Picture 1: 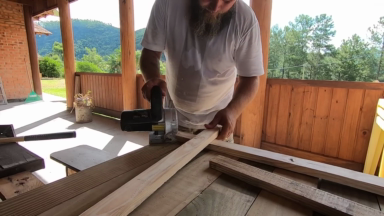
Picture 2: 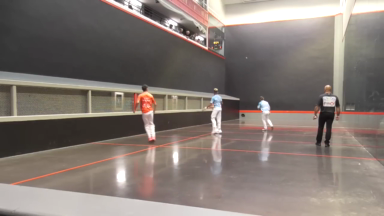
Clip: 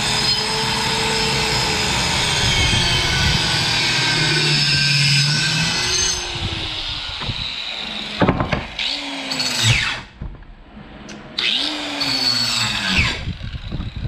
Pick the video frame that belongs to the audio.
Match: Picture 1